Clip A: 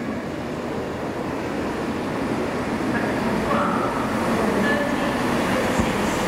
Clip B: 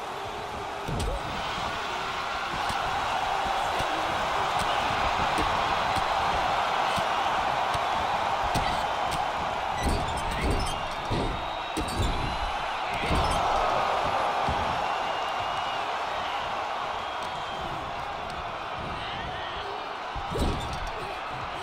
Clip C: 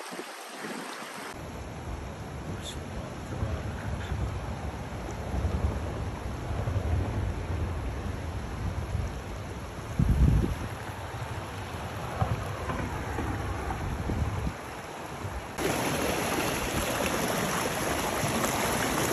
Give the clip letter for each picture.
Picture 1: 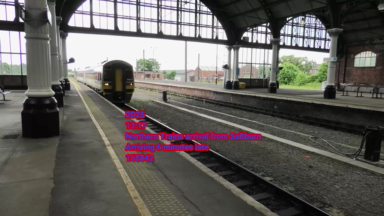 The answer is A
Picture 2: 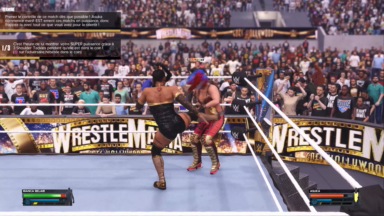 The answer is B